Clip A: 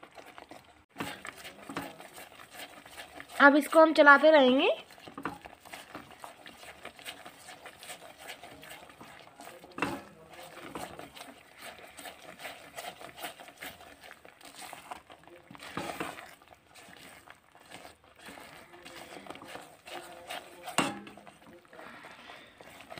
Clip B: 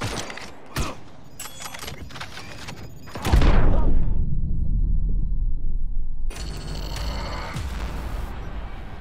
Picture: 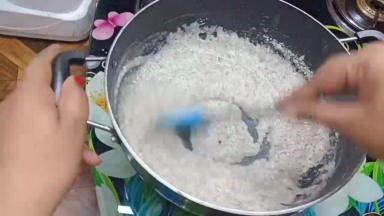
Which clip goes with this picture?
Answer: A